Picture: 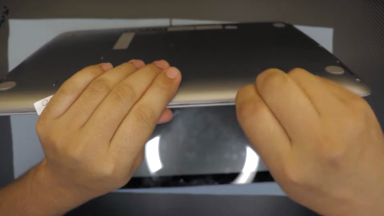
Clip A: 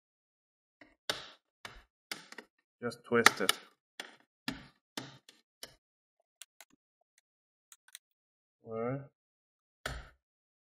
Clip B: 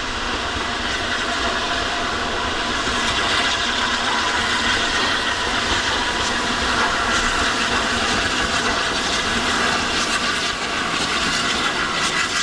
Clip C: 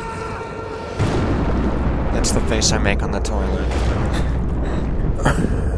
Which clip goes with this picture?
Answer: A